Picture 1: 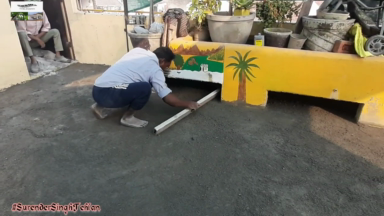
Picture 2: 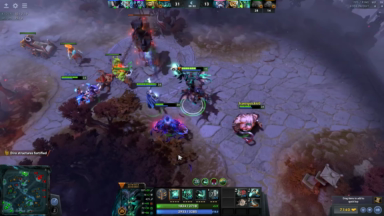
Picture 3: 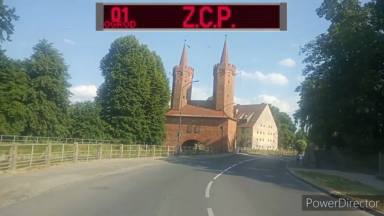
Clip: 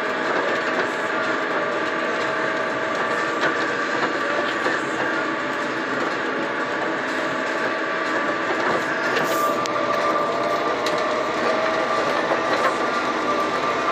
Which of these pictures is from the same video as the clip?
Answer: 3